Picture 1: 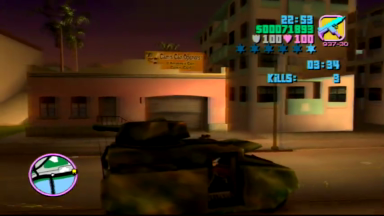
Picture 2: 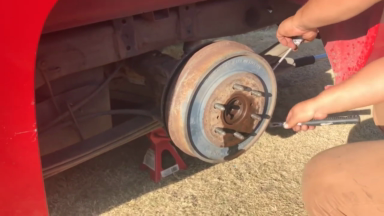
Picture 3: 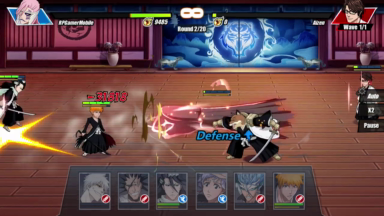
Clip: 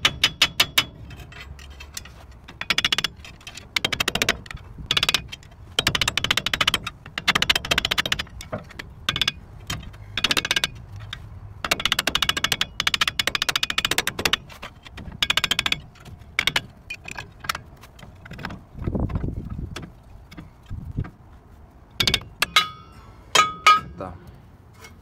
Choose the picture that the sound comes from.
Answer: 2